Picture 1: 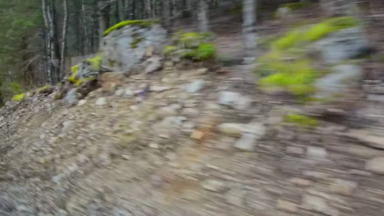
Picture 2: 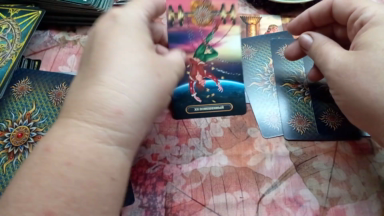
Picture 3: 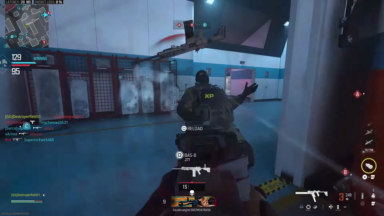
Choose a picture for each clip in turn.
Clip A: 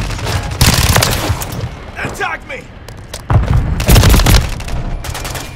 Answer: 3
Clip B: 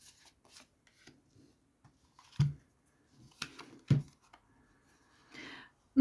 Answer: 2